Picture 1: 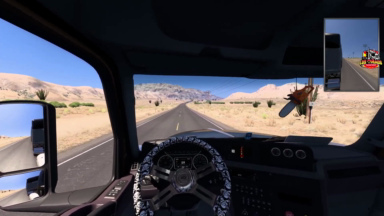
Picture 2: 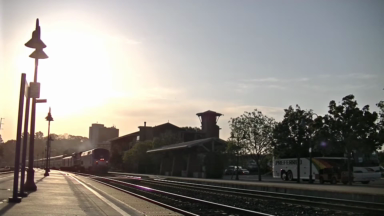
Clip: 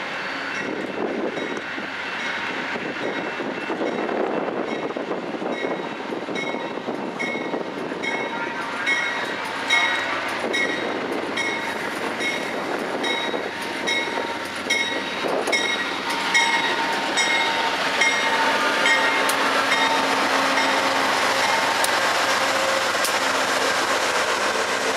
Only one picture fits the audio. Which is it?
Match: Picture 2